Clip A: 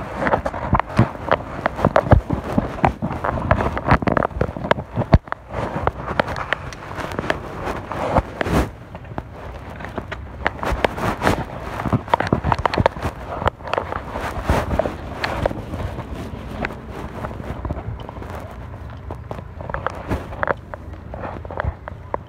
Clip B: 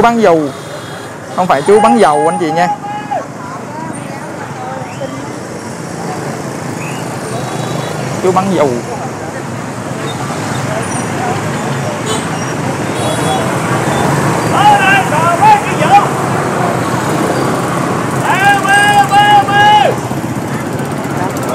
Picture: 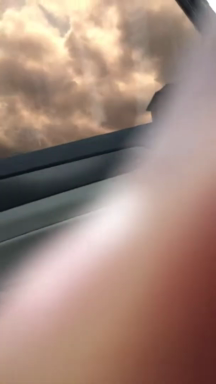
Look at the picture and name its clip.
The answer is A